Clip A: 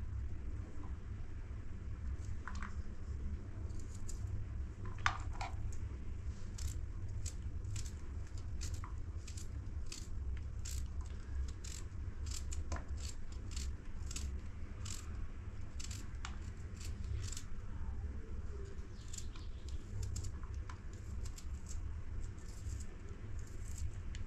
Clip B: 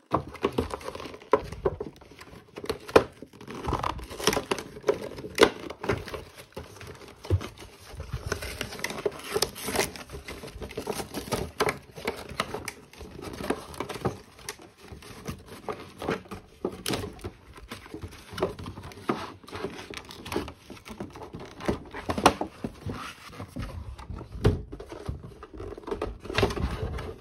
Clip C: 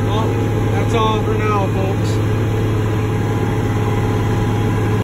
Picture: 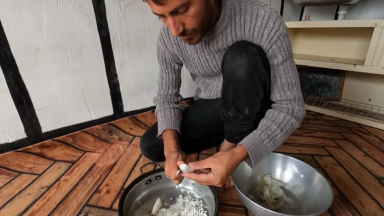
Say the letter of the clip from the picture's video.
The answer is A